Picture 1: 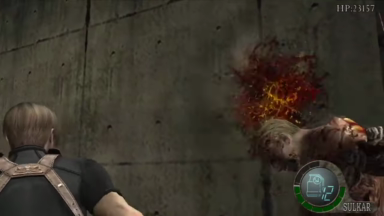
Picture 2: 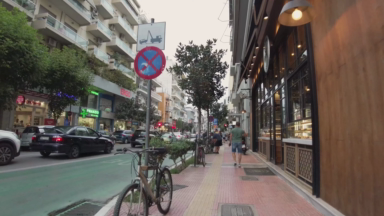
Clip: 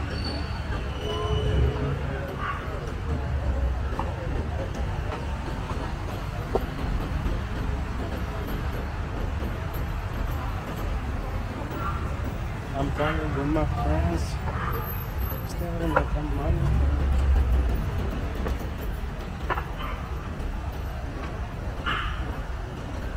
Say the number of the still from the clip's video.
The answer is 2